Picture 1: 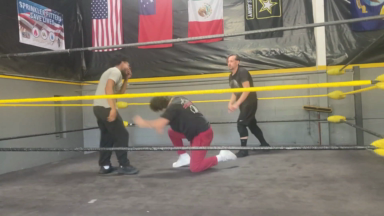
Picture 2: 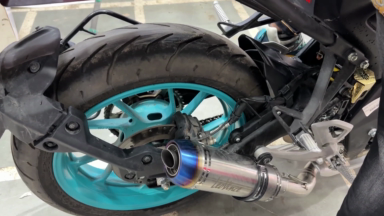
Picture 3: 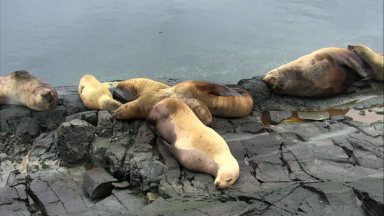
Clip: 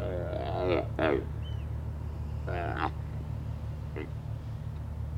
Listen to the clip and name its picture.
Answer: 3